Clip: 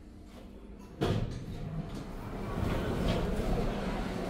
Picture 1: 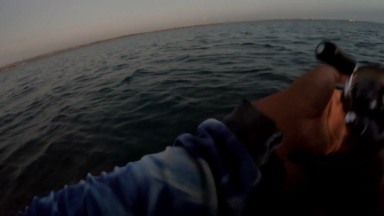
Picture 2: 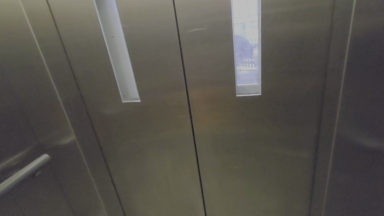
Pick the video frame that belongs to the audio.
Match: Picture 2